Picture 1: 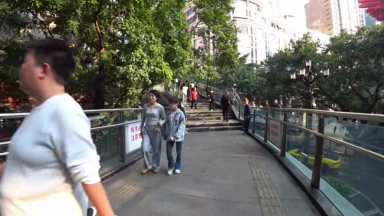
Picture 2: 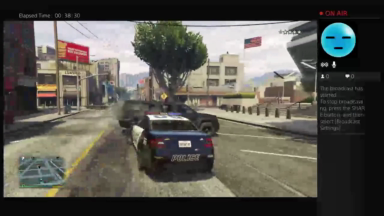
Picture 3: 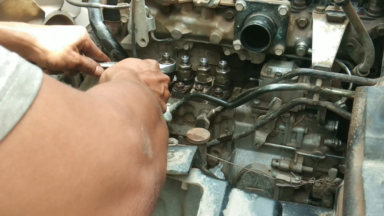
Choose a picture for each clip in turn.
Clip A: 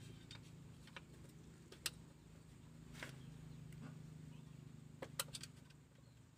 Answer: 3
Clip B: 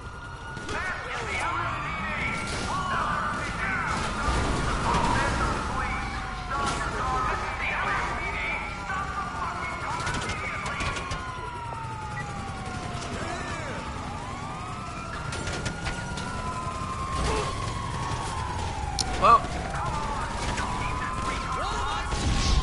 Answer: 2